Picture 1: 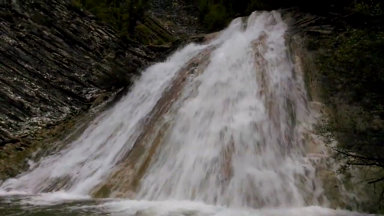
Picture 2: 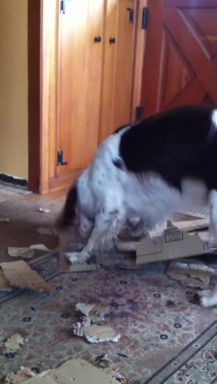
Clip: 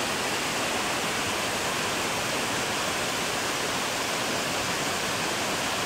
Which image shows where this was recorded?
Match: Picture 1